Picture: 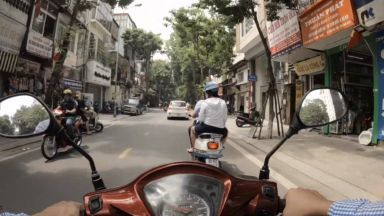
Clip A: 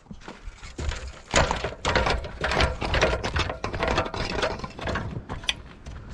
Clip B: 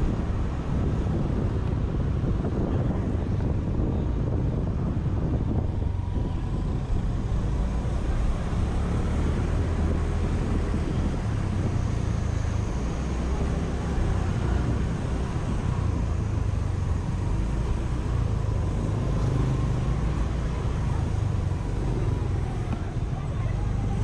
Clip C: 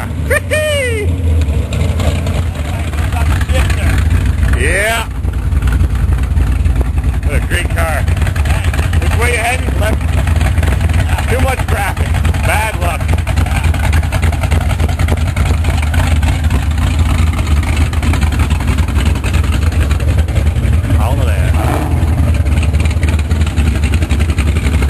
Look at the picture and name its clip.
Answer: B